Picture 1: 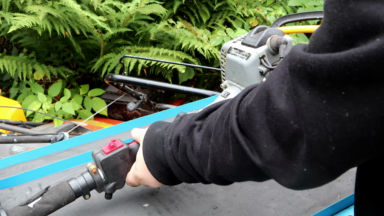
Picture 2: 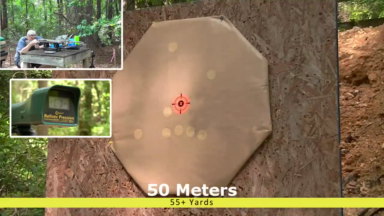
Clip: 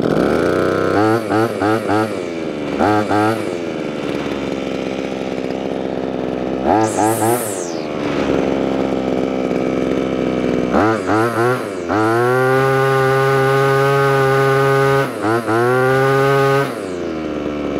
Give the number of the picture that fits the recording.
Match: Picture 1